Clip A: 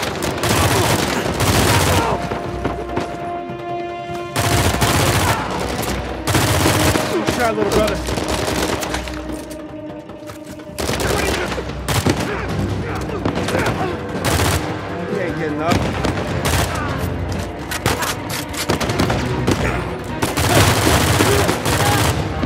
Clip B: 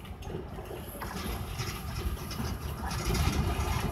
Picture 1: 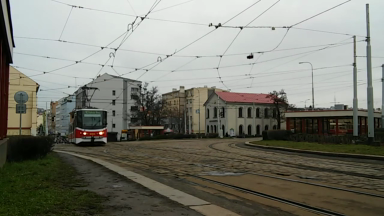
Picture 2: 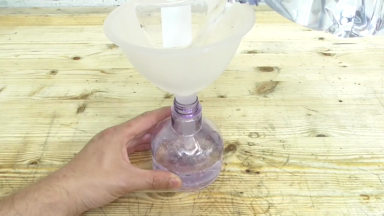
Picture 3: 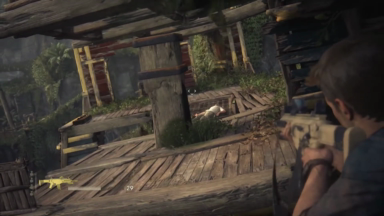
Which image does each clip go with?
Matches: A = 3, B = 1